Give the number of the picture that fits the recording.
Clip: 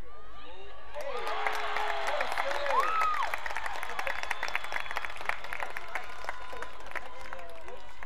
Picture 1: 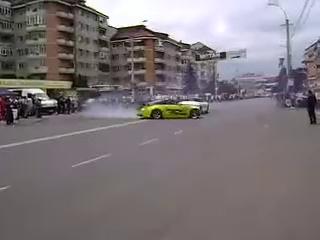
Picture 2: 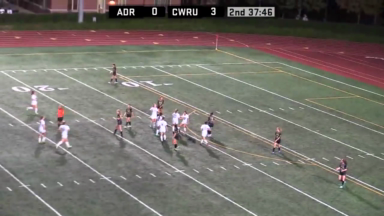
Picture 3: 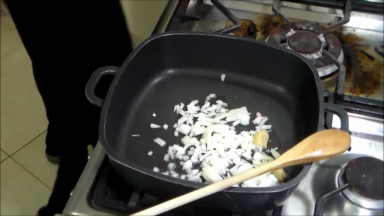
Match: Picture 2